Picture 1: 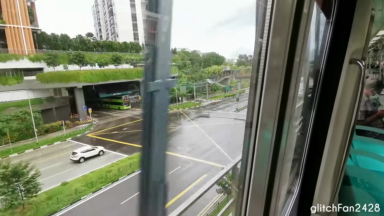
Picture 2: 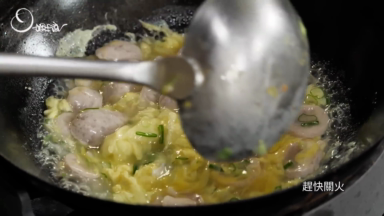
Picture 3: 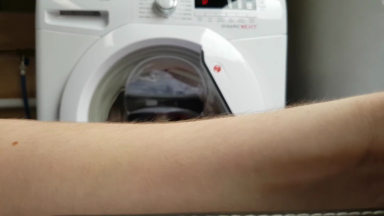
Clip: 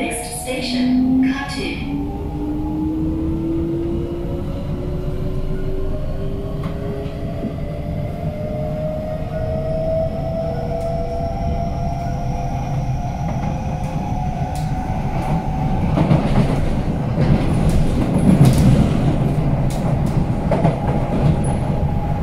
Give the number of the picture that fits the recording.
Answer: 1